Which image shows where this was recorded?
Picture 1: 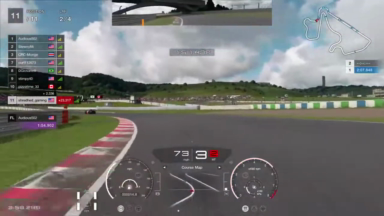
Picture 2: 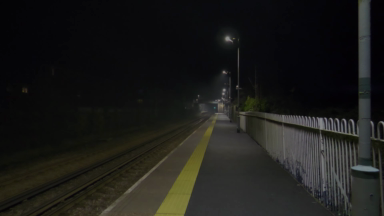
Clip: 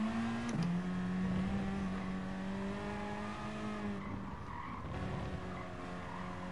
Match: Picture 1